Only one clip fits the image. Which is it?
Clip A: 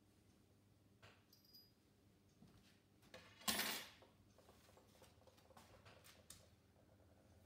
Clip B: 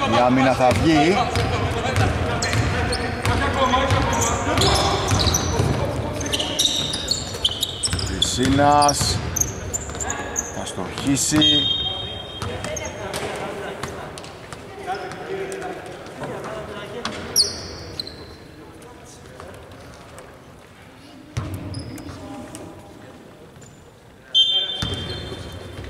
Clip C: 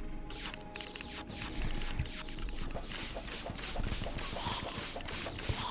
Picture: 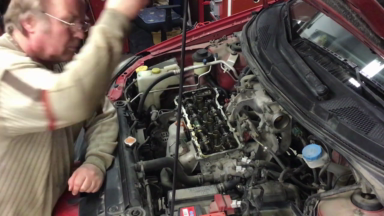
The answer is A